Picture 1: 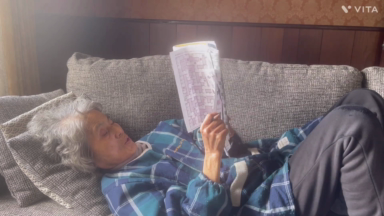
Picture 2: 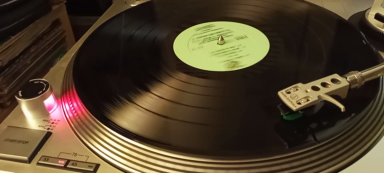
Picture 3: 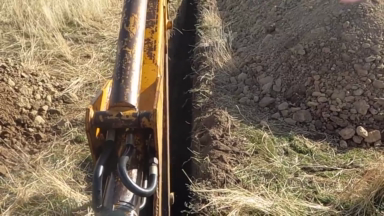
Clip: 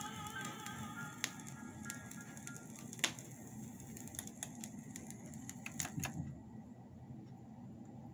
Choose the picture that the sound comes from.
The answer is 2